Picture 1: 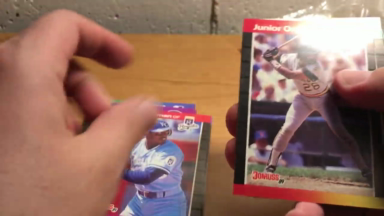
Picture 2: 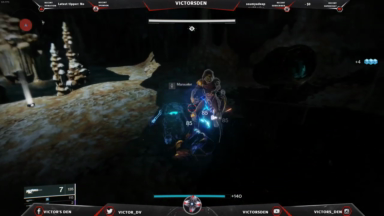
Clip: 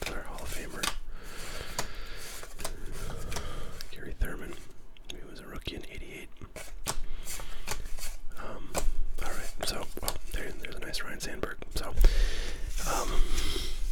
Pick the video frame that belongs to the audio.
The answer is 1